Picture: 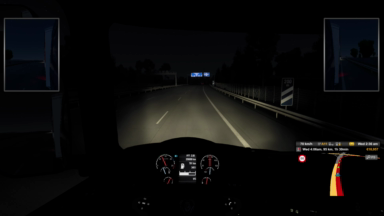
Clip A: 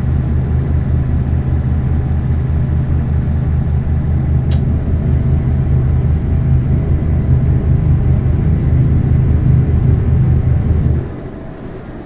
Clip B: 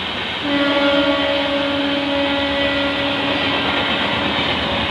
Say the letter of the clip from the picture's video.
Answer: A